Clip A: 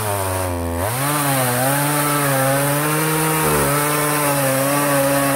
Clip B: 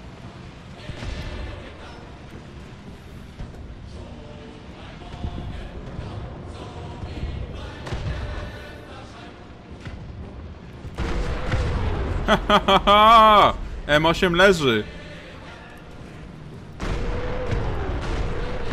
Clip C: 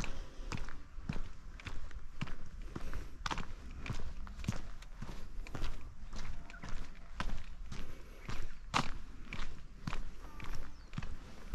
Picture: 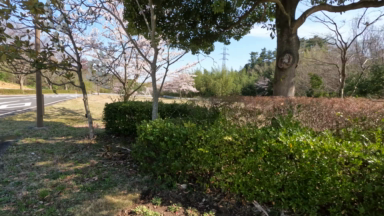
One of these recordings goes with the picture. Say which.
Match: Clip C